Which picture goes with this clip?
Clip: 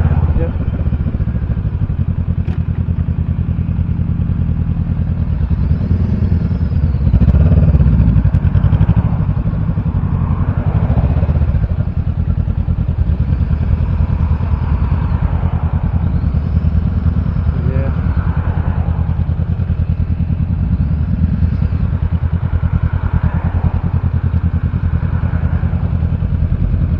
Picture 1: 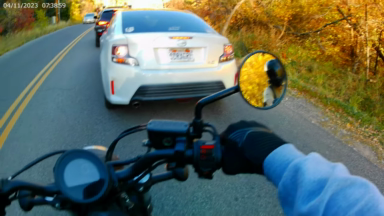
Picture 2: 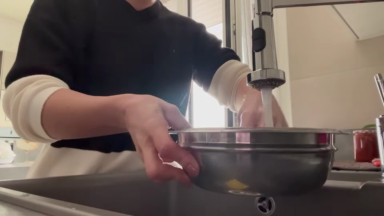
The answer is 1